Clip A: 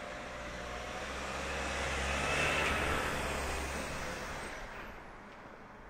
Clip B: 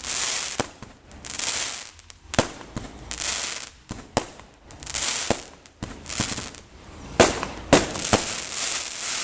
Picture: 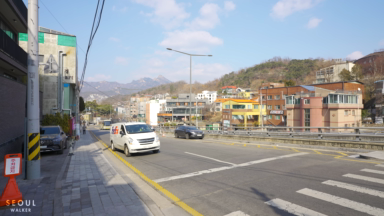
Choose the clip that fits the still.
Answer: A